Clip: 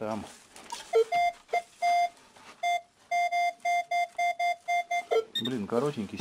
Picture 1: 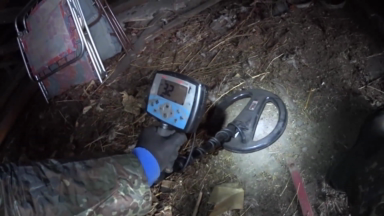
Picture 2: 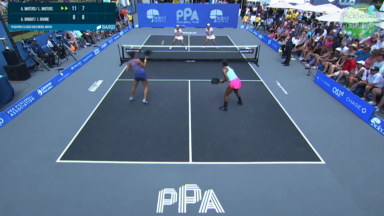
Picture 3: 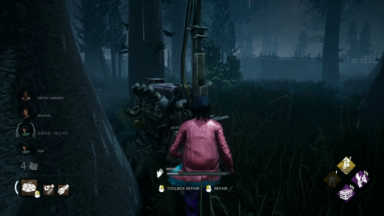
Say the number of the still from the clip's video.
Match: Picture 1